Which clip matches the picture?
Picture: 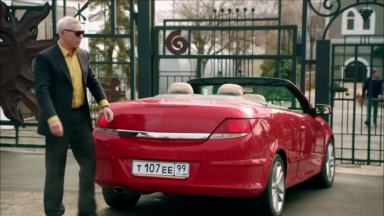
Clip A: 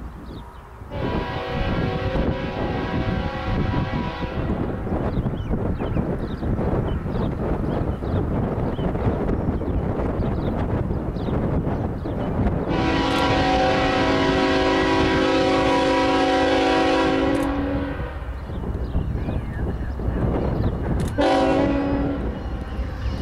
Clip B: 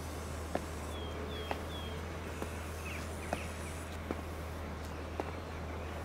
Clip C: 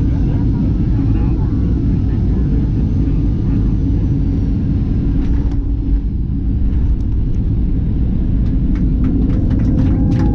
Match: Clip B